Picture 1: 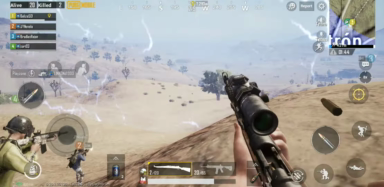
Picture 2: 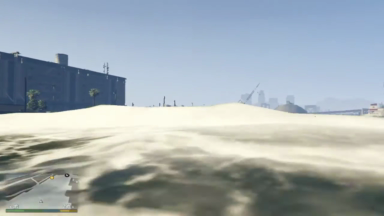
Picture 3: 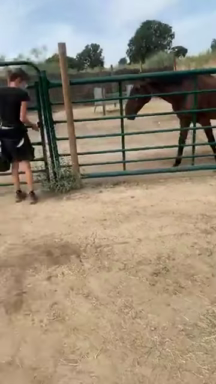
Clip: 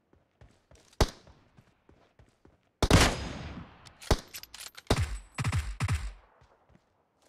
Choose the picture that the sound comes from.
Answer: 1